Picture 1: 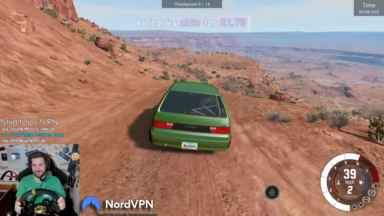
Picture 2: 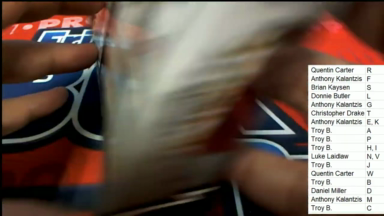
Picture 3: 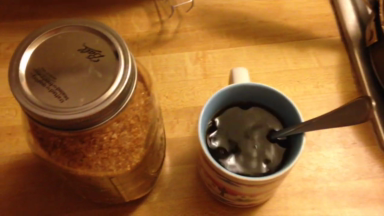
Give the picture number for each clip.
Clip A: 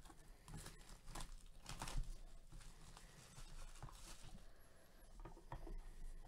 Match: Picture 2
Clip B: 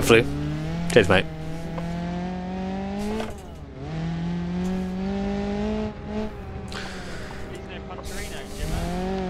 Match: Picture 1